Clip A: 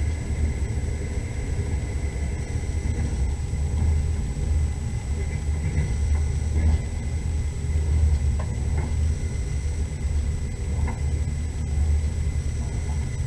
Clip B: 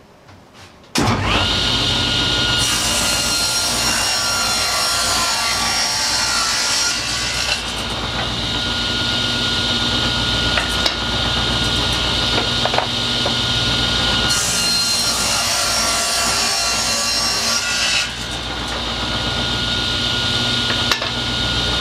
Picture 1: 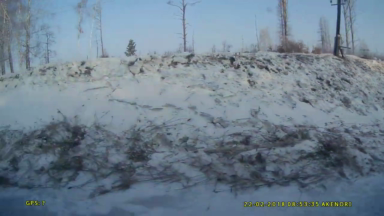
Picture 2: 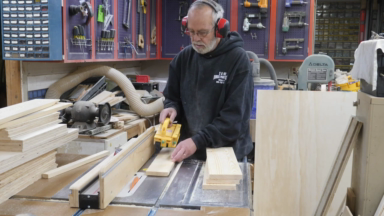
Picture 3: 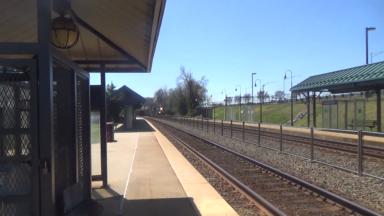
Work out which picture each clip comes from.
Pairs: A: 1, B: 2